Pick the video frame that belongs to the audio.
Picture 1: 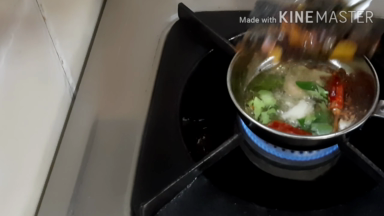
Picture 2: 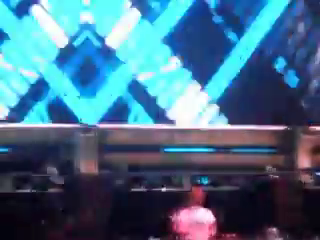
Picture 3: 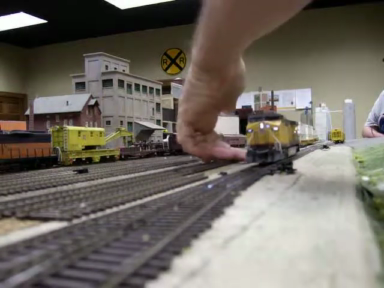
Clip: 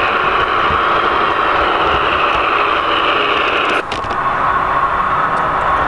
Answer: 3